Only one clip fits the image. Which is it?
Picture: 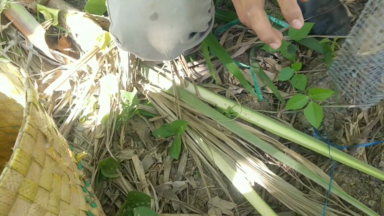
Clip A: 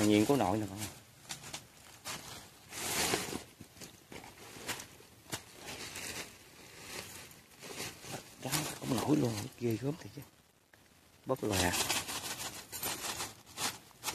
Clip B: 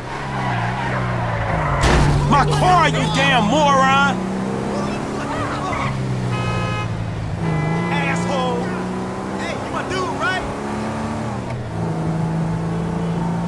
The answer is A